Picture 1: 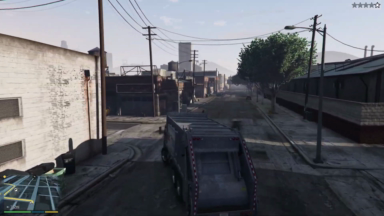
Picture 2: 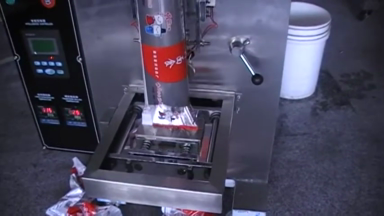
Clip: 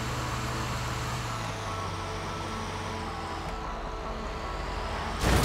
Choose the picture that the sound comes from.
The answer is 1